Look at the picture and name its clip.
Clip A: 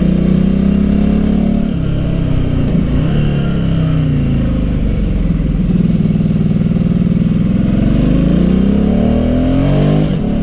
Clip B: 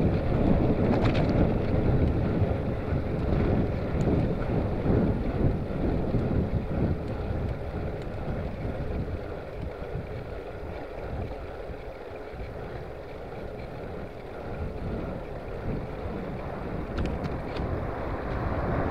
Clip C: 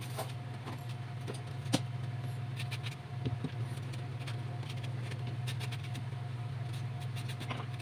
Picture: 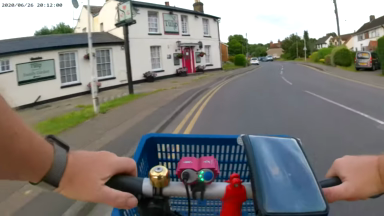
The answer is B